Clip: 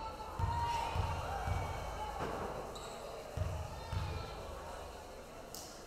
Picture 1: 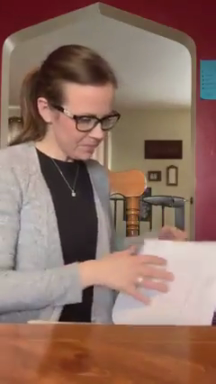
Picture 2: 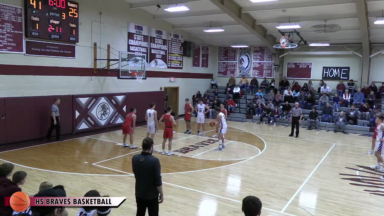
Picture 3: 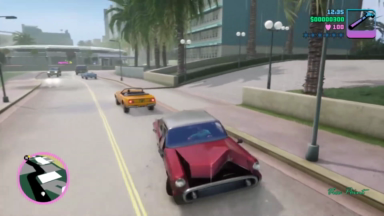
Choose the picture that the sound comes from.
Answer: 2